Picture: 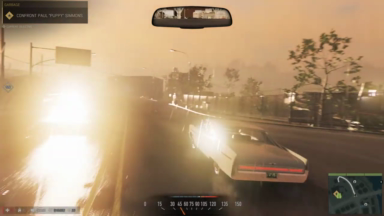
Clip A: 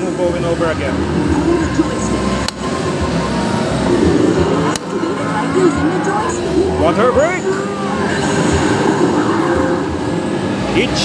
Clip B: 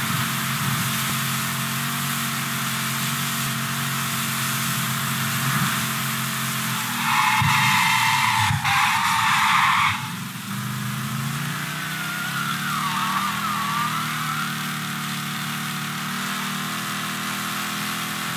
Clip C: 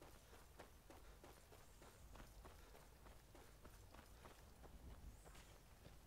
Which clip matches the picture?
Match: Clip B